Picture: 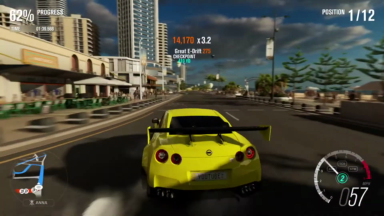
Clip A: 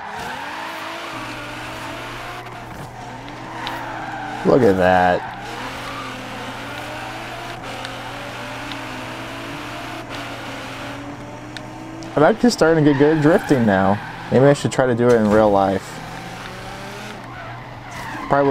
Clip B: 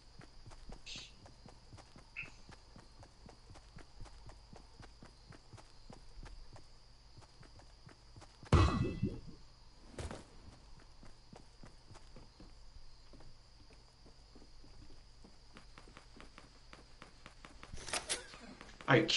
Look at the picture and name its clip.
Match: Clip A